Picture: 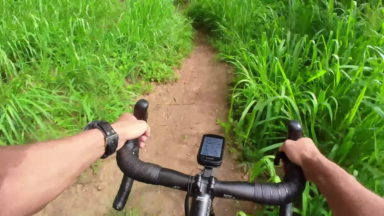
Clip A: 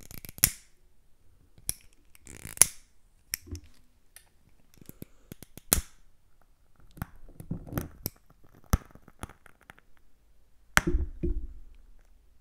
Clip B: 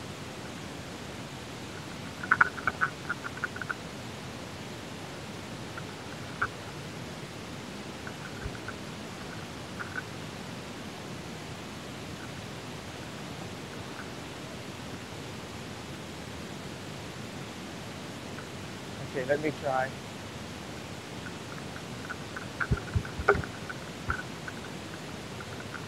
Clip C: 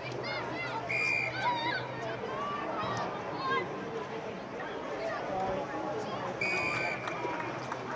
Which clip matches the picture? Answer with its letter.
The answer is B